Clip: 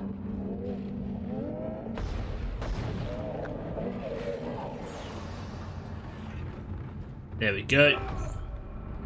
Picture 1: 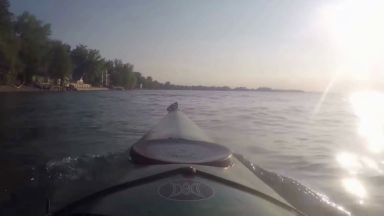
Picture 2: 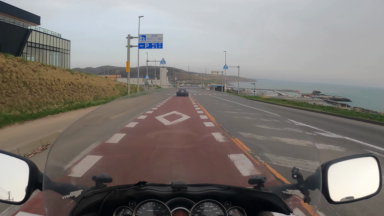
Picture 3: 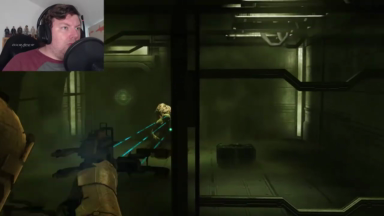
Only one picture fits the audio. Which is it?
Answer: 3